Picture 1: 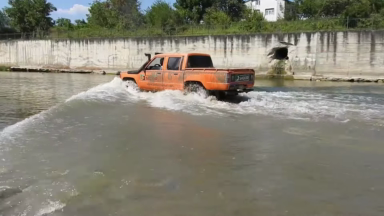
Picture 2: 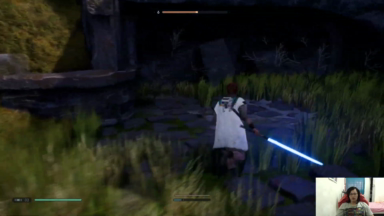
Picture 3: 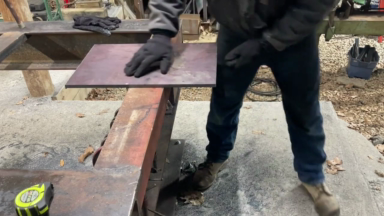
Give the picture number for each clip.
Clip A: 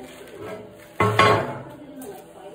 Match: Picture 3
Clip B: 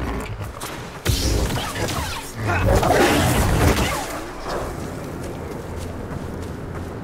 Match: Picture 2